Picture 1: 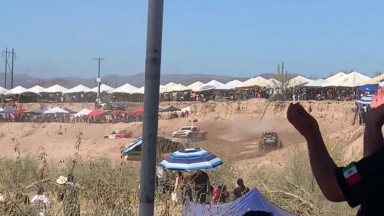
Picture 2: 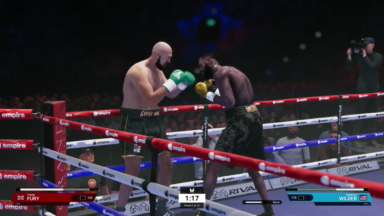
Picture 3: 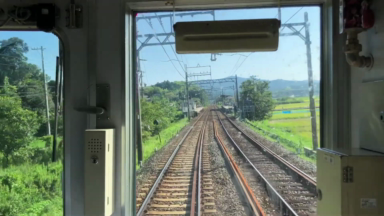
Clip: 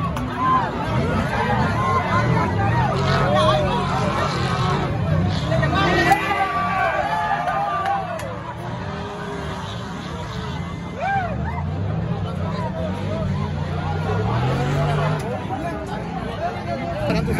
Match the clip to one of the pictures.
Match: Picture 1